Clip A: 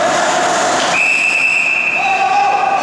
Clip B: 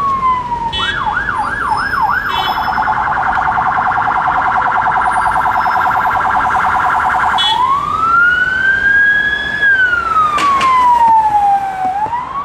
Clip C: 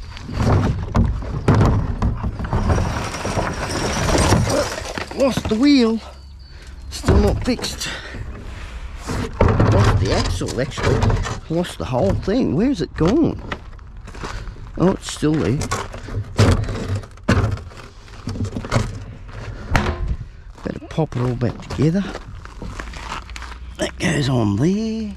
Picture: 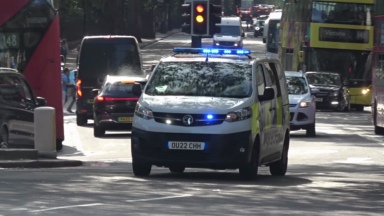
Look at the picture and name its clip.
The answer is B